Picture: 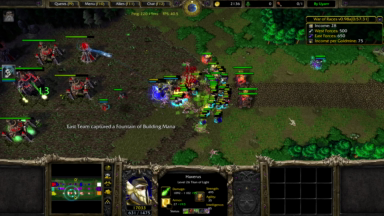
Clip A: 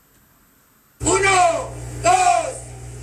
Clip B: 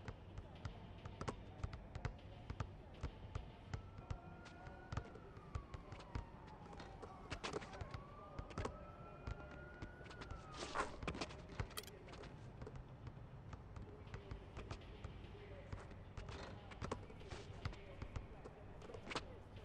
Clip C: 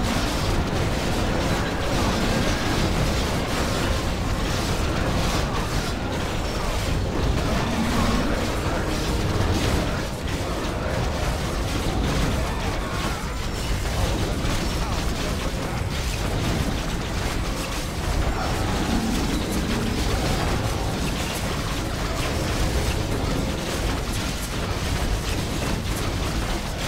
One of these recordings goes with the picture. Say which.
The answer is C